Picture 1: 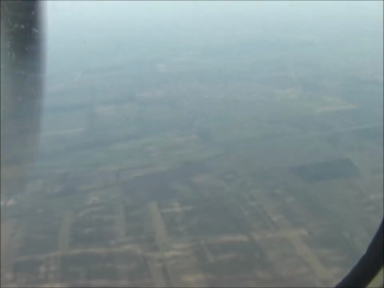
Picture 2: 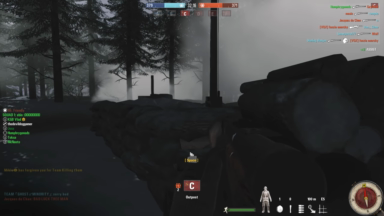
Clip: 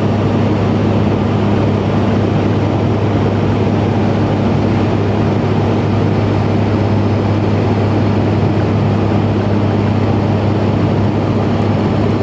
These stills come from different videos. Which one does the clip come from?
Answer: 1